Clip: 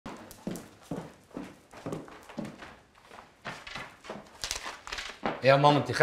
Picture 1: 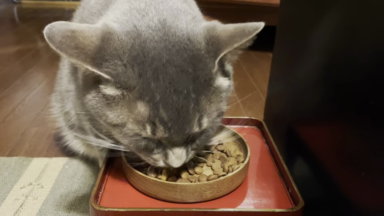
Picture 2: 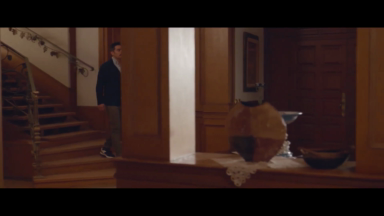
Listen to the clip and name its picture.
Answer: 2